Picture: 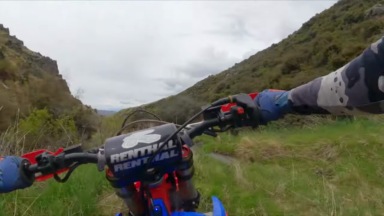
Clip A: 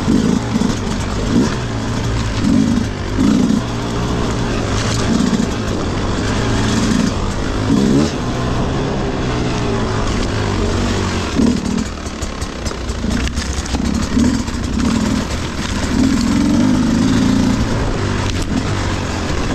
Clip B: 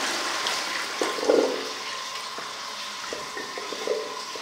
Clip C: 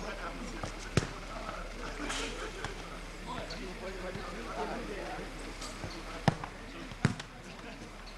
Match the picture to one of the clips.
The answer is A